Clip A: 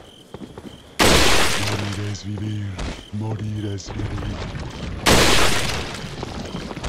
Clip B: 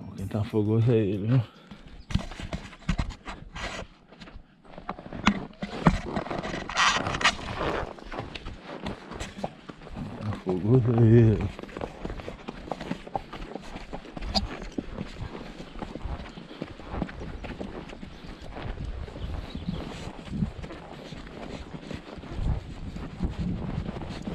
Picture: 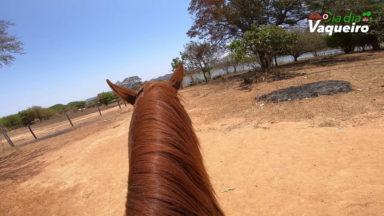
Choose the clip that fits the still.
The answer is B